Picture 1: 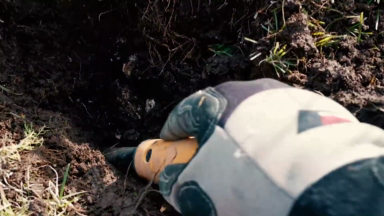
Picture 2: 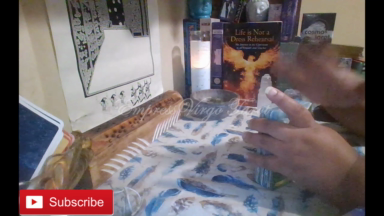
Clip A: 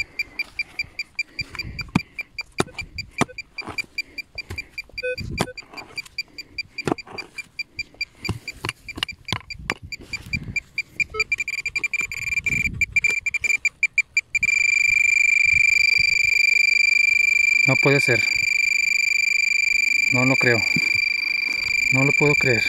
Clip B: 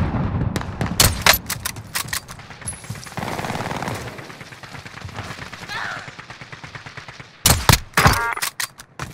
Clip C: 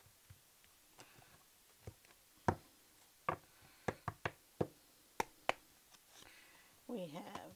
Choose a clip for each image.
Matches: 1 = A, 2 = C